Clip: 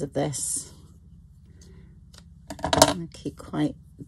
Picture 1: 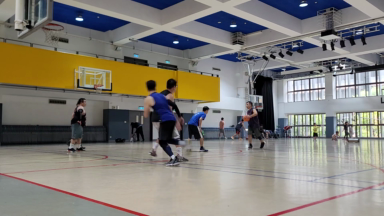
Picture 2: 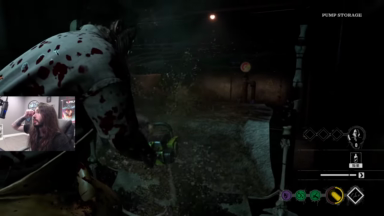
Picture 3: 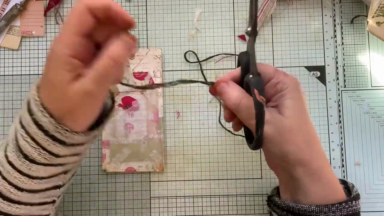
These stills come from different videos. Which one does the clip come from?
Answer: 3